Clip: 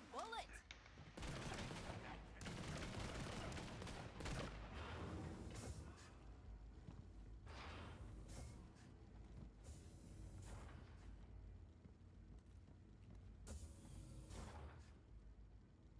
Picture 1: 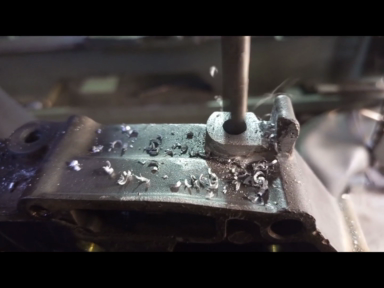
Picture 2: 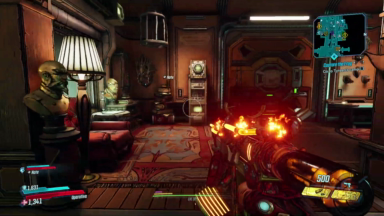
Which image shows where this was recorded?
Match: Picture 2